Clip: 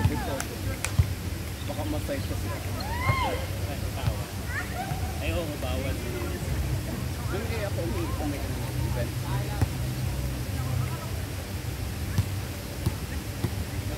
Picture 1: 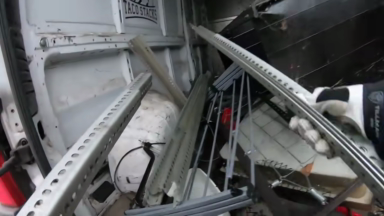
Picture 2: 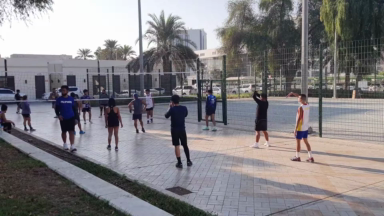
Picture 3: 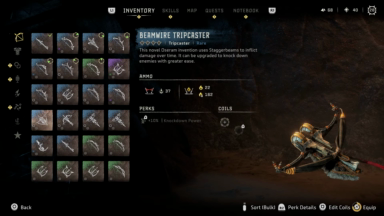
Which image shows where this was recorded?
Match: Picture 2